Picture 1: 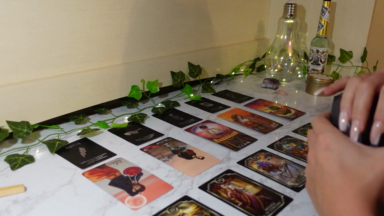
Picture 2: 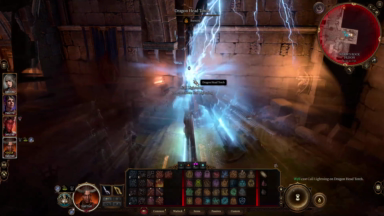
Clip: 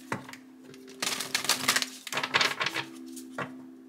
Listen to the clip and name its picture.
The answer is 1